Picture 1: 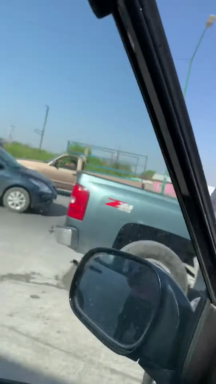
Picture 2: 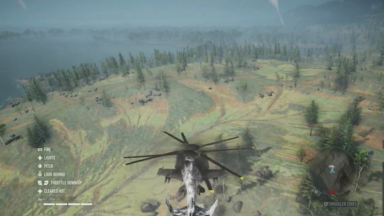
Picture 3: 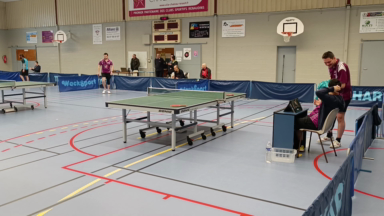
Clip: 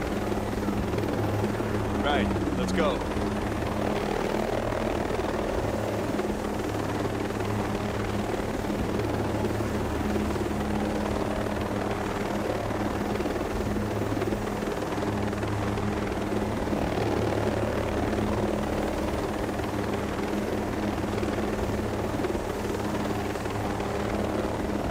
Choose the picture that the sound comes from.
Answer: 2